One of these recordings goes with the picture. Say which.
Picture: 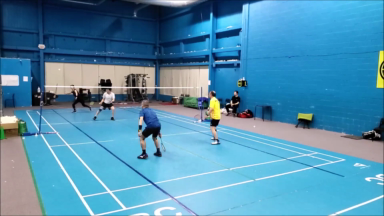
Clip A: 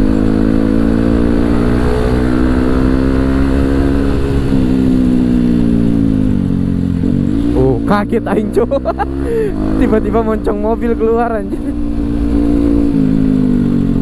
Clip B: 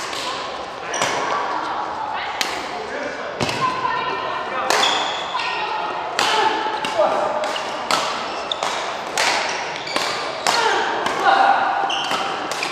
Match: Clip B